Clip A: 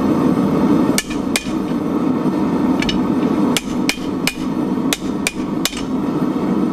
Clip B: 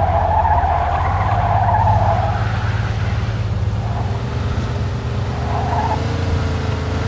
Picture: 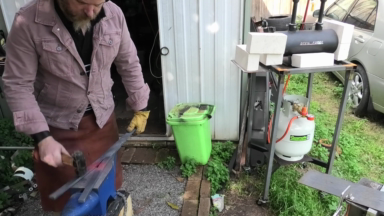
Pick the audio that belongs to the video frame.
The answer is A